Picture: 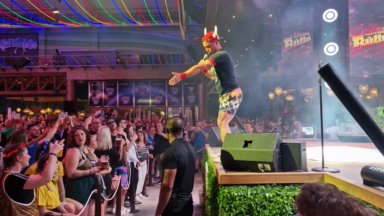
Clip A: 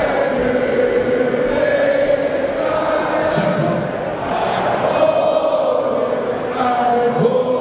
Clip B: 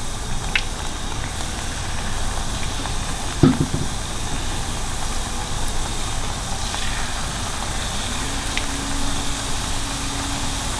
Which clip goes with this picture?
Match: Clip A